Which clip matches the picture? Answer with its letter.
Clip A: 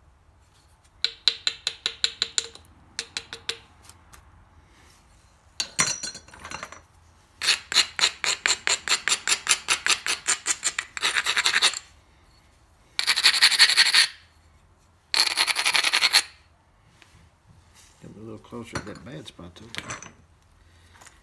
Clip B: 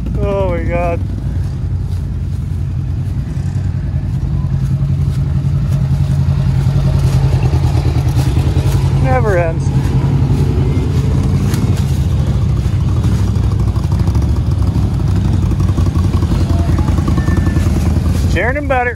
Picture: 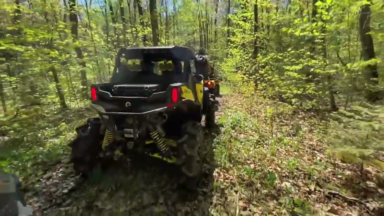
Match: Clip B